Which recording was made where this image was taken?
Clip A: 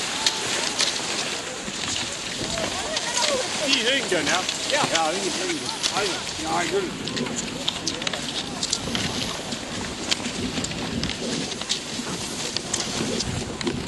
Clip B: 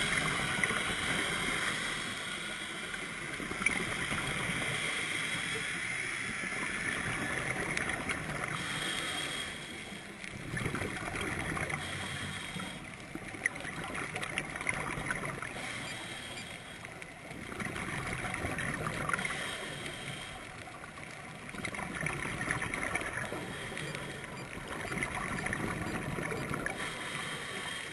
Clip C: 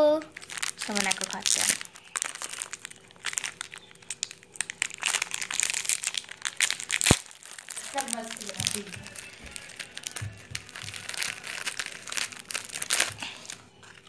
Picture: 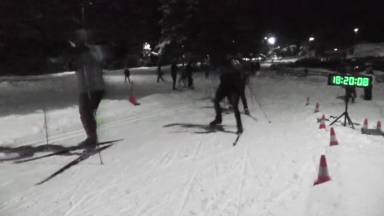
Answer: A